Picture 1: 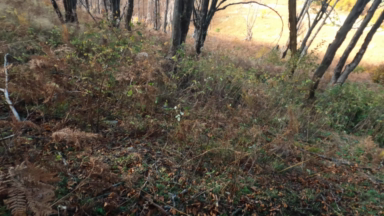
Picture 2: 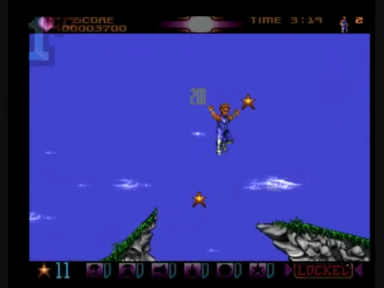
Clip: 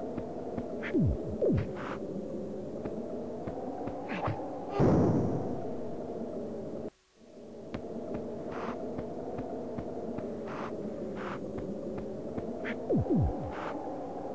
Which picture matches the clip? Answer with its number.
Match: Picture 2